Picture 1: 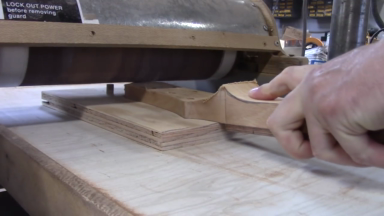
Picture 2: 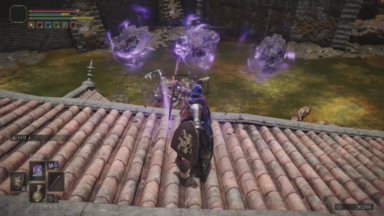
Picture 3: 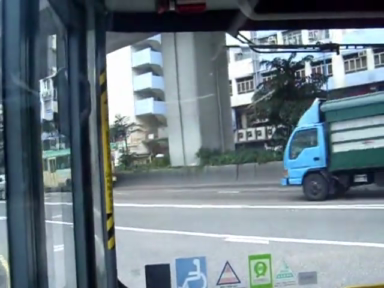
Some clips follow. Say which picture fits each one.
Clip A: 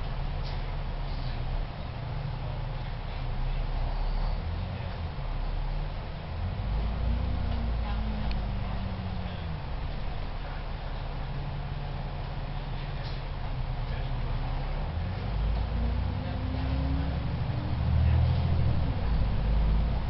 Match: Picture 3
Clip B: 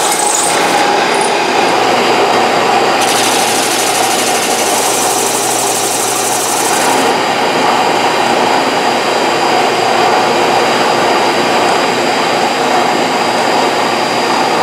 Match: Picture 1